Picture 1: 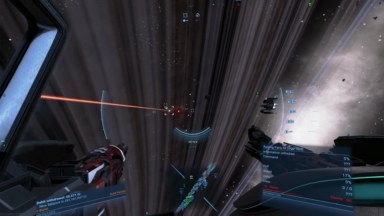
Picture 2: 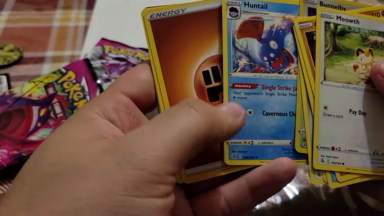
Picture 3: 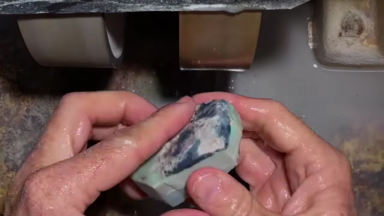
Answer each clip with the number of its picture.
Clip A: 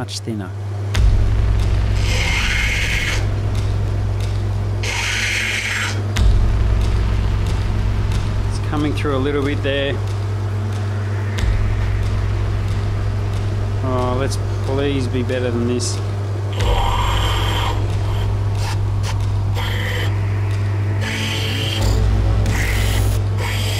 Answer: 3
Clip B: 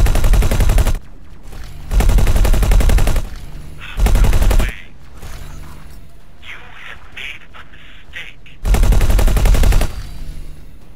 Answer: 1